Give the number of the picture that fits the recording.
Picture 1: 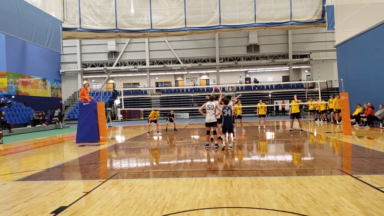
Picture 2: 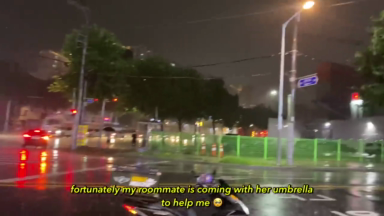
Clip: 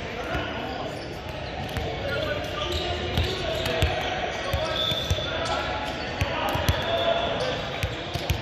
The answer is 1